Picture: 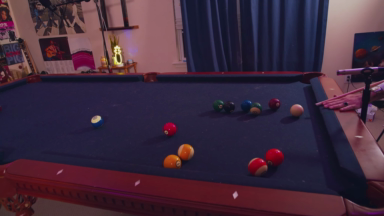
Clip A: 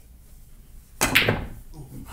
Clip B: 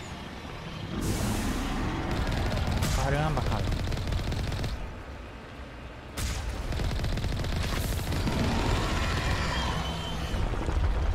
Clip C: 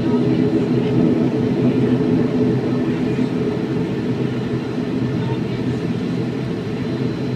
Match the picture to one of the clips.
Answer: A